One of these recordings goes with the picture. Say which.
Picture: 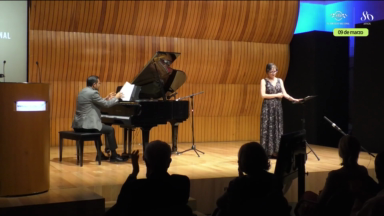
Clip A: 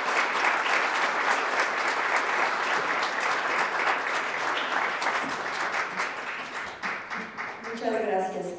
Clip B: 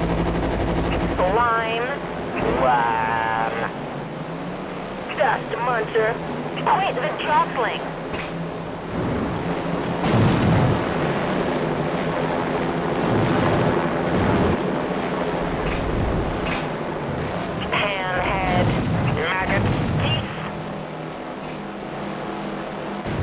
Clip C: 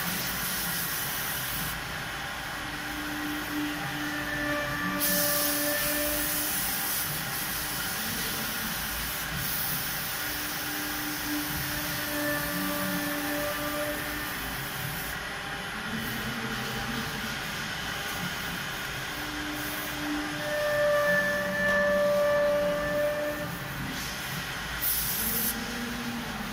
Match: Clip A